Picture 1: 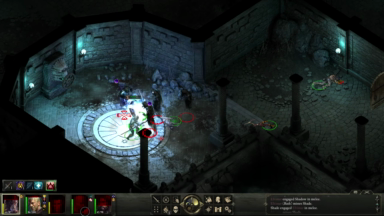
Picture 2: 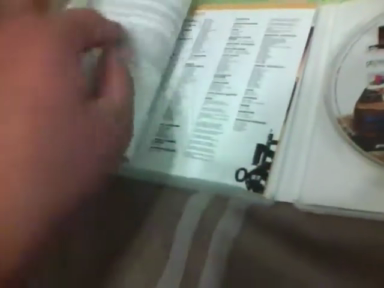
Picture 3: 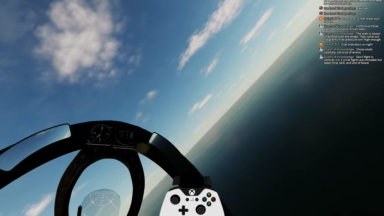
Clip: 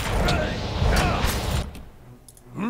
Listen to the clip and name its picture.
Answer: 1